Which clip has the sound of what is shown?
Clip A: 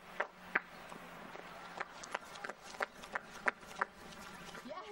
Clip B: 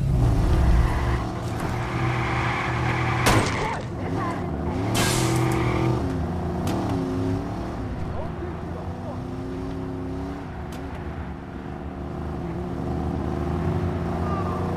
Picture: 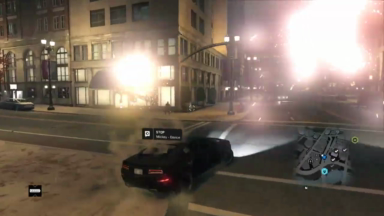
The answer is B